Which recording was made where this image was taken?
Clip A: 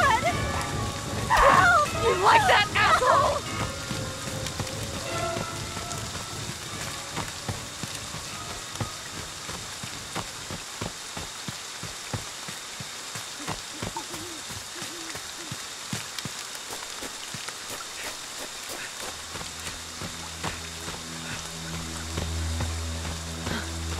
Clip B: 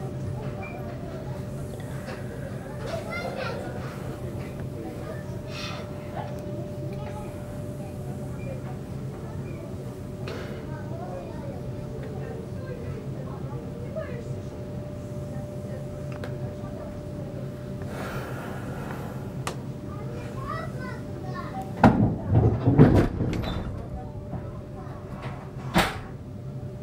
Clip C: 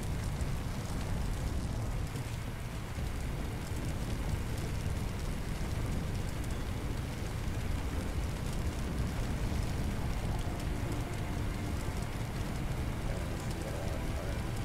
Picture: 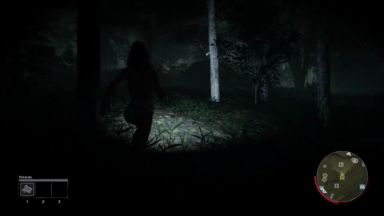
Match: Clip A